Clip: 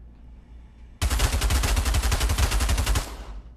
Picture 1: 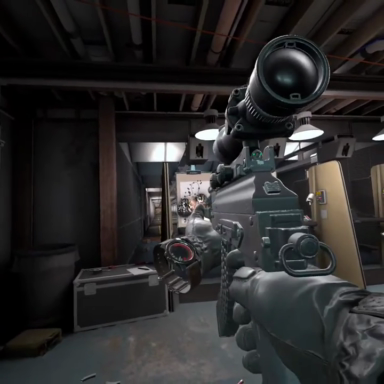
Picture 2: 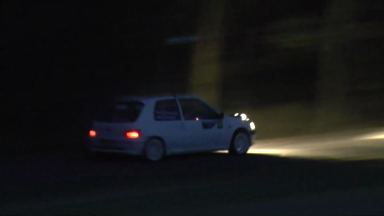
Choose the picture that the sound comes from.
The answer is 1